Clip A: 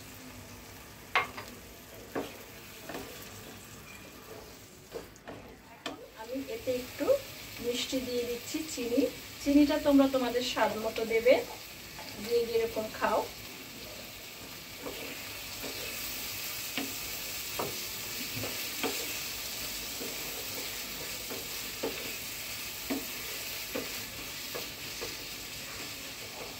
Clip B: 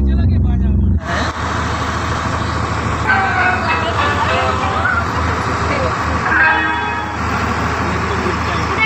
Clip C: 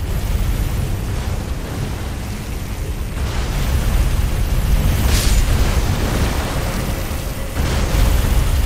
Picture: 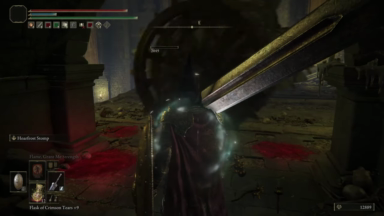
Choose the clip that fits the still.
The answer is C